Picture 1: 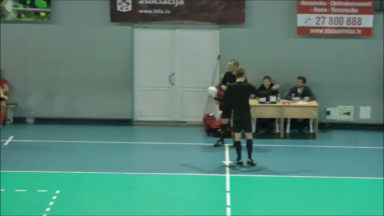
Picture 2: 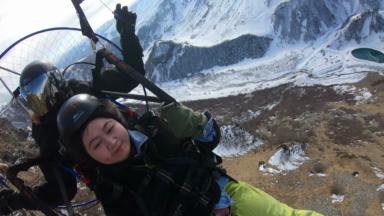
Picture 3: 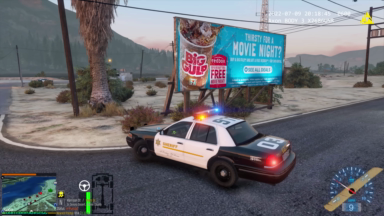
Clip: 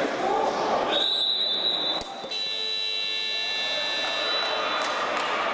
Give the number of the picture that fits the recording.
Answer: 1